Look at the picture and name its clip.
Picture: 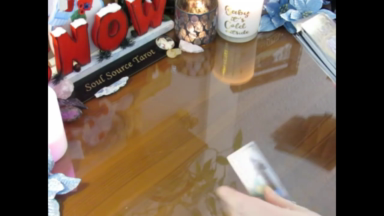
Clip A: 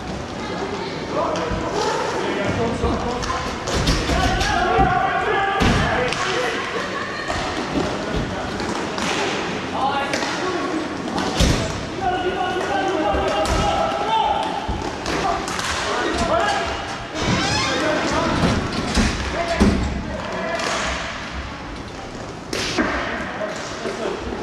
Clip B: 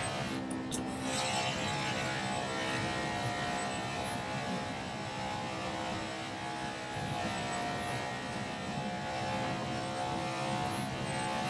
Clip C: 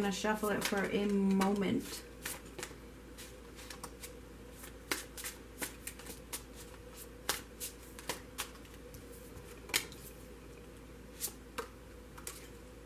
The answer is C